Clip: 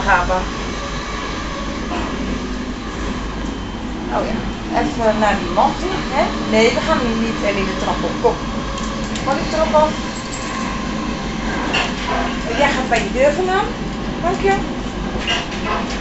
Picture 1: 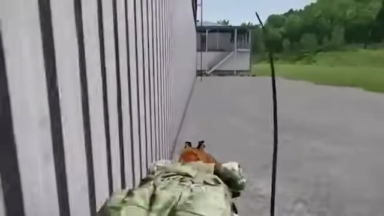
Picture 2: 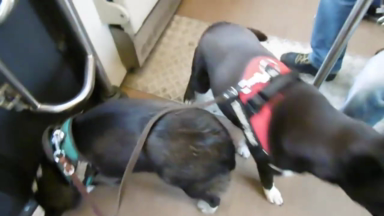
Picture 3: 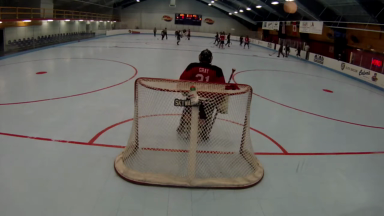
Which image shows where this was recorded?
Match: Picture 2